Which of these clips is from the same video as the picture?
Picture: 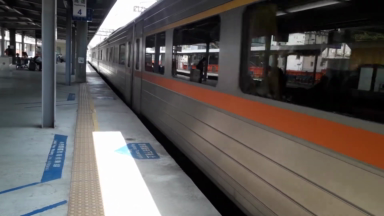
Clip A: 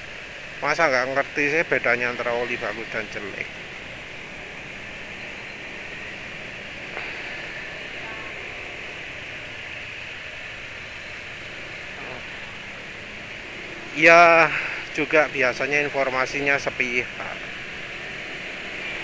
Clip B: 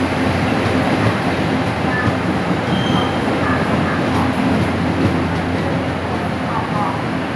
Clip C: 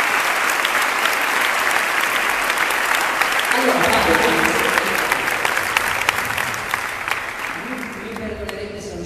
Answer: B